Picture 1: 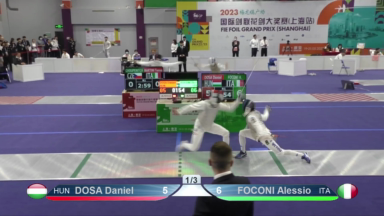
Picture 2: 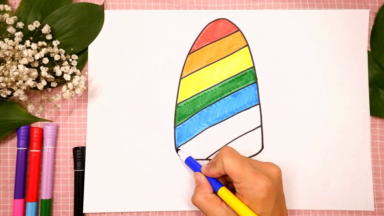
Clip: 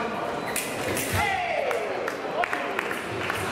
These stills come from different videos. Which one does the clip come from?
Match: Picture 1